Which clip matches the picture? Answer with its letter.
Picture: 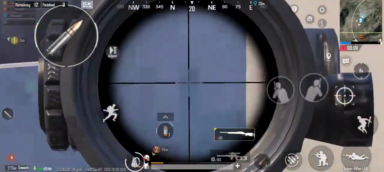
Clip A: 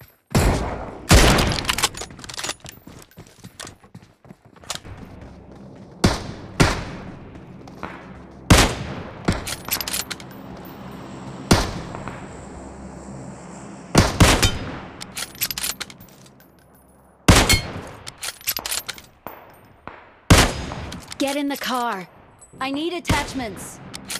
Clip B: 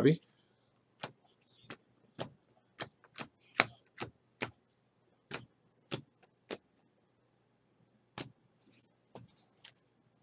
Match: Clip A